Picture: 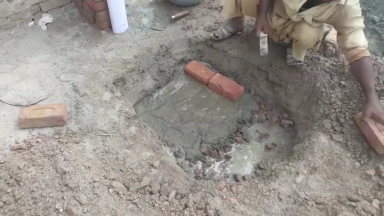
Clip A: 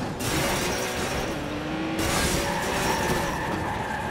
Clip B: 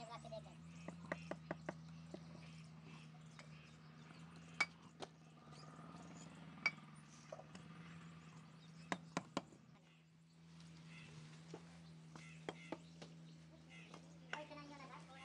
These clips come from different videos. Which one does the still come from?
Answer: B